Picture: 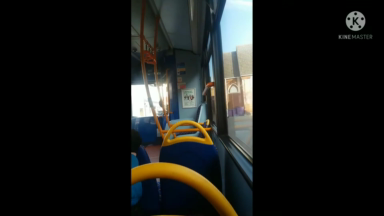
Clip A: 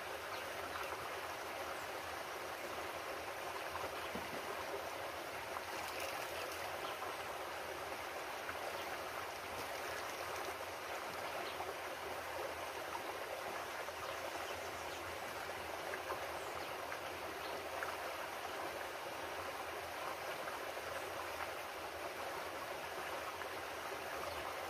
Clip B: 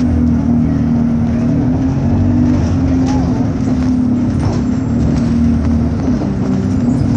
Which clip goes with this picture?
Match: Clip B